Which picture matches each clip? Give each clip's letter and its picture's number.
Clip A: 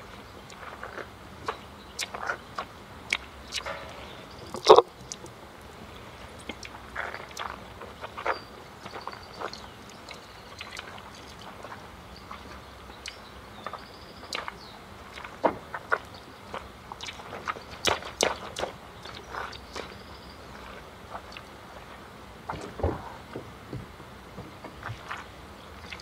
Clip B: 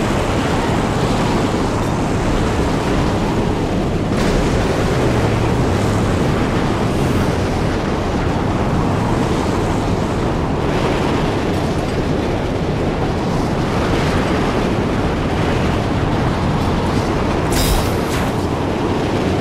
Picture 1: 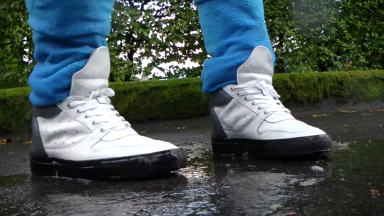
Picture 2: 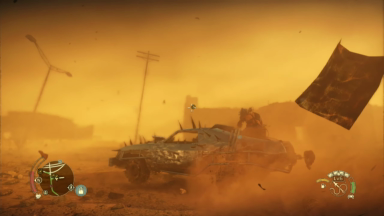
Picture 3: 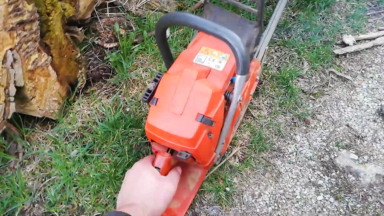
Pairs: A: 1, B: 2